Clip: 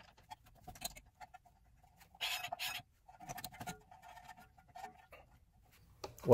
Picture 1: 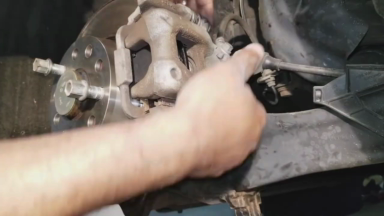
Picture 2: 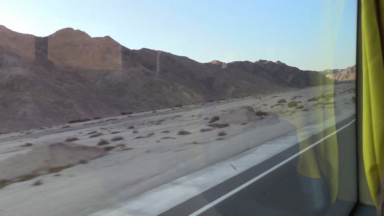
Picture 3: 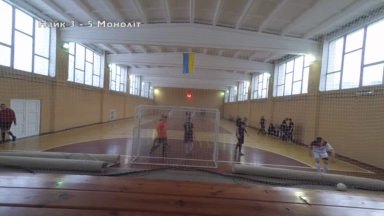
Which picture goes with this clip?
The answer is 1